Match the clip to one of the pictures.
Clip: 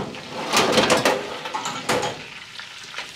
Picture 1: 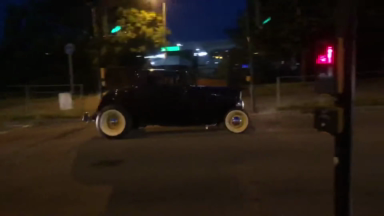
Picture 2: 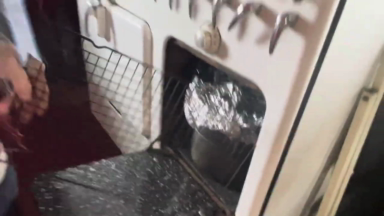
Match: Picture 2